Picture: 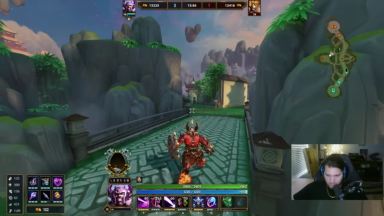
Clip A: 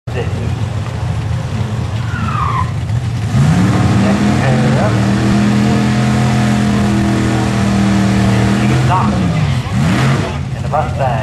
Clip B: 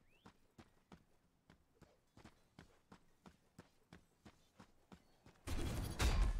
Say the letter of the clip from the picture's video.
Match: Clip B